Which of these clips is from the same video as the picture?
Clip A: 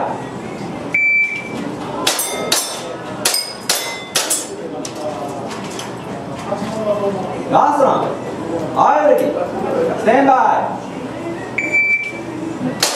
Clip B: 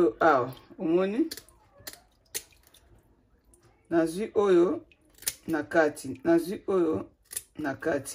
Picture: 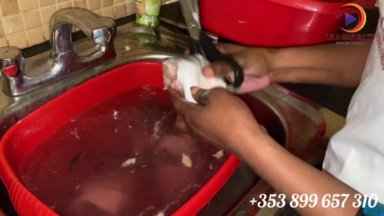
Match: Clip B